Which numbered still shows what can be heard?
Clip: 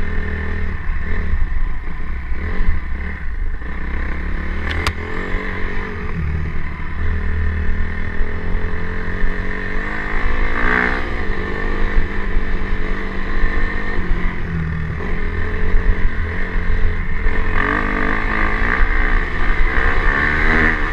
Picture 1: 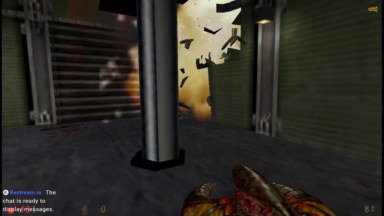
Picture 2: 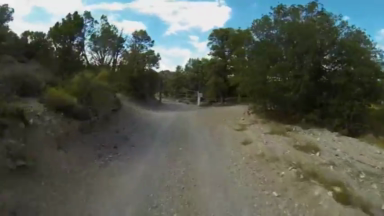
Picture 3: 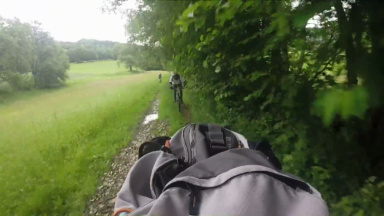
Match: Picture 2